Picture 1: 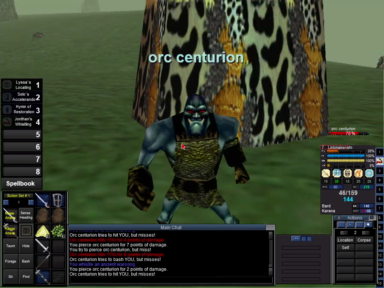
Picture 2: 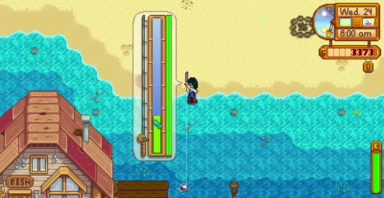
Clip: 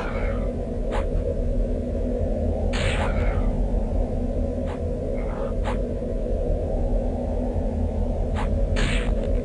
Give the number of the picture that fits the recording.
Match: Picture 1